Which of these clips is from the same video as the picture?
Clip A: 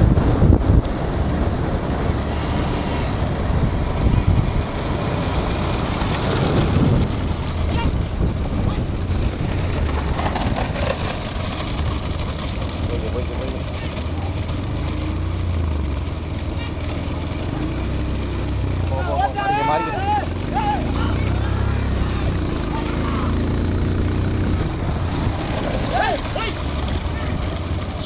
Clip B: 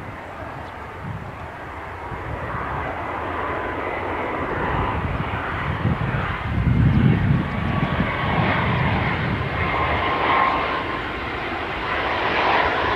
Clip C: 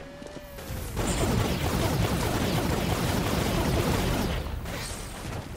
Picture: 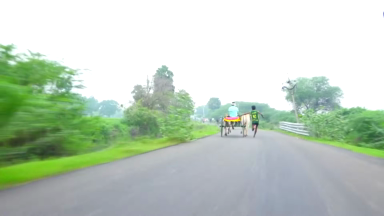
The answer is A